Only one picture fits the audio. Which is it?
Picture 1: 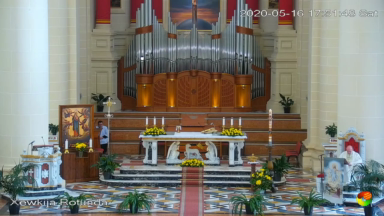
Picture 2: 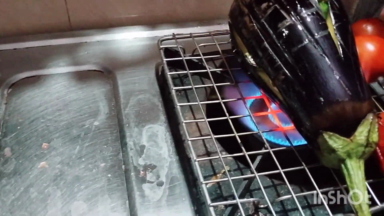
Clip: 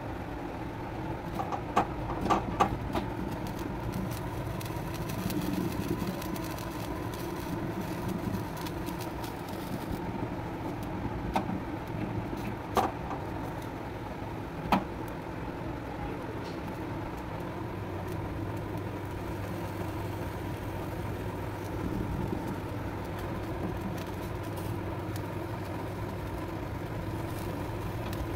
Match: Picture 2